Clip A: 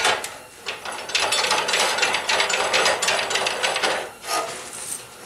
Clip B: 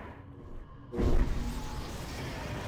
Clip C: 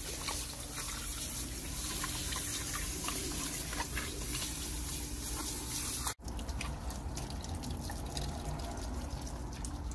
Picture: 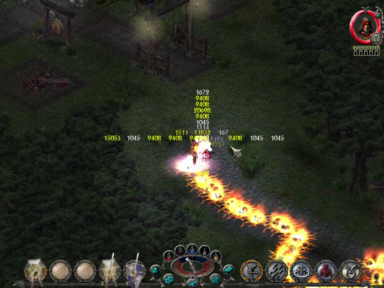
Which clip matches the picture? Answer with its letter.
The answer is B